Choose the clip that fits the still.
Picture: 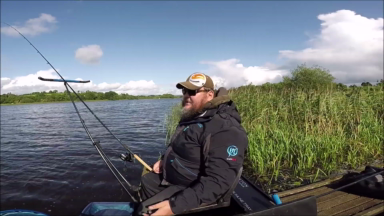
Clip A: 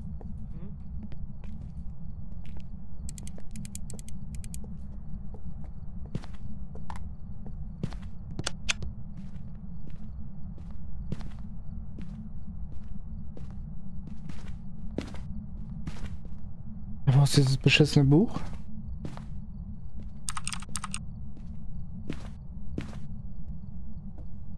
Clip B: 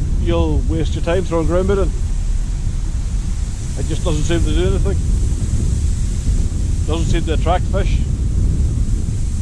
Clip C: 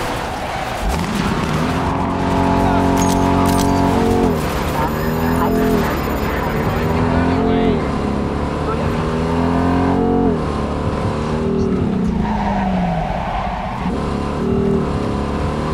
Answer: B